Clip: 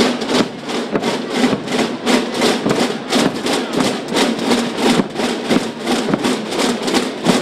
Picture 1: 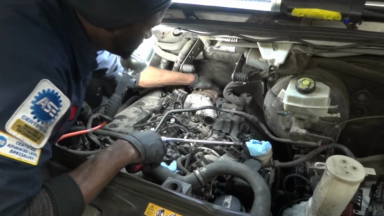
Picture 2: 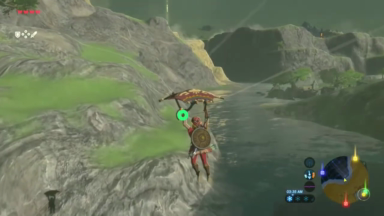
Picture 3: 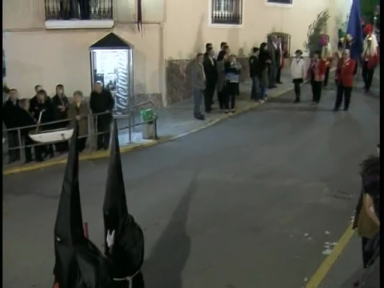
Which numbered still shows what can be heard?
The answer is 3